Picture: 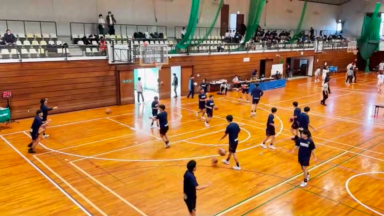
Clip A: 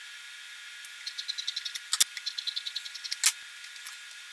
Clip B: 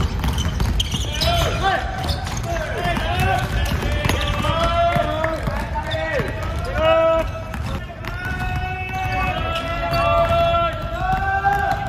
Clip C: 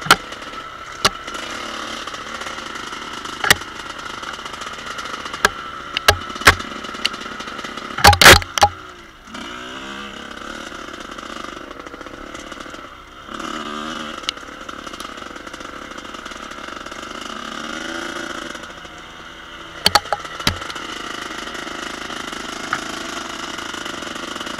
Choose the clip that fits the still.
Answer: B